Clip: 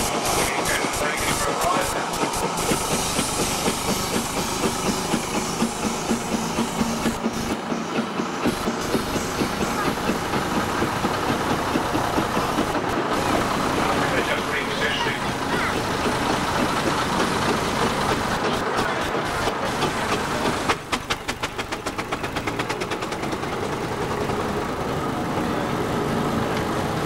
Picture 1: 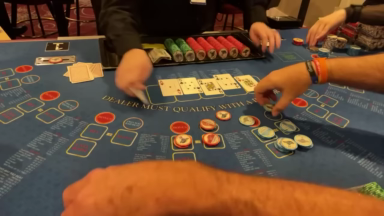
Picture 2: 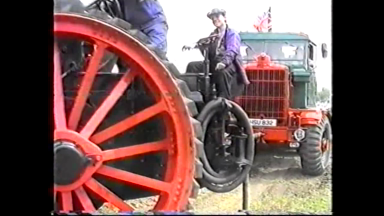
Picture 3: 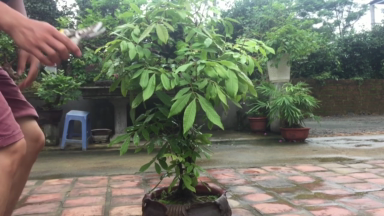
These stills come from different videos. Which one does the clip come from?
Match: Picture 2